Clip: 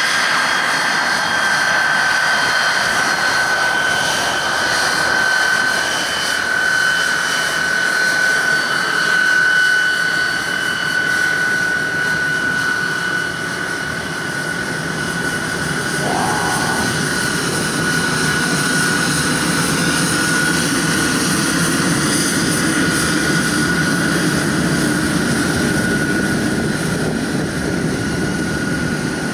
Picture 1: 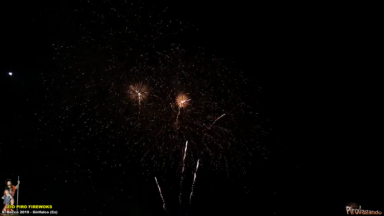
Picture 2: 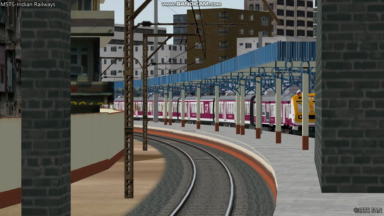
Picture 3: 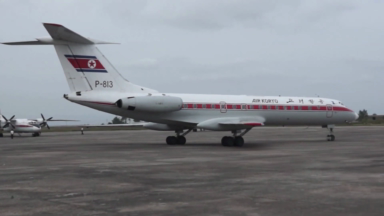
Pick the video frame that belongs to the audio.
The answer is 3